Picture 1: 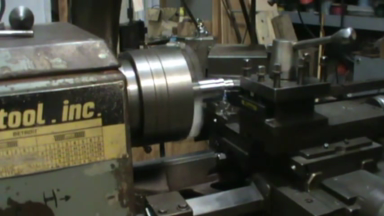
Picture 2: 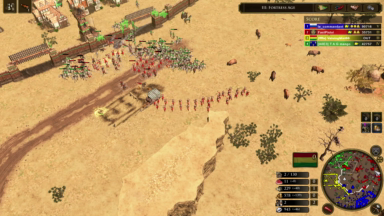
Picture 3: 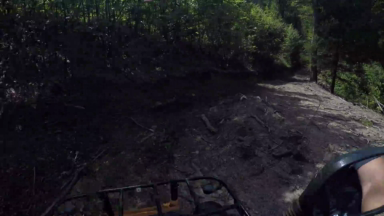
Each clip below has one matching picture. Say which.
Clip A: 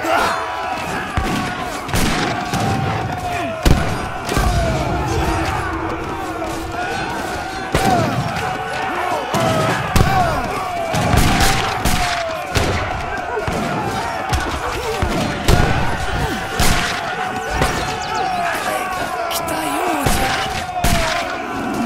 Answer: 2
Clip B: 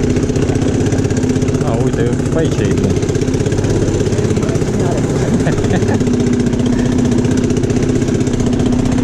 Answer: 3